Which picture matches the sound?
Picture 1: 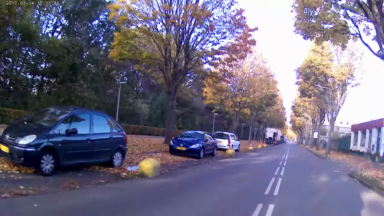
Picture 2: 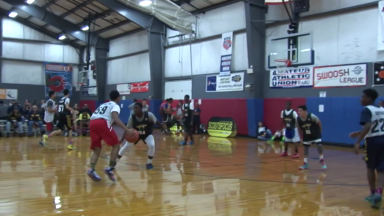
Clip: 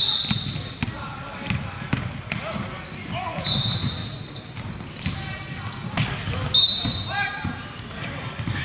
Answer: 2